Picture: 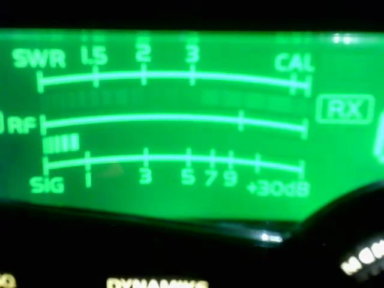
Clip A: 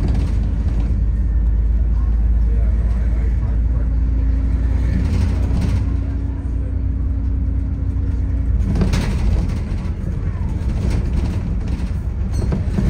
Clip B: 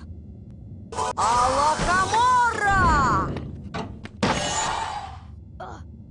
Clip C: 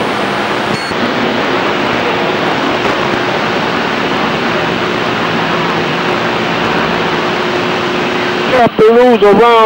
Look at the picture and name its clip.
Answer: C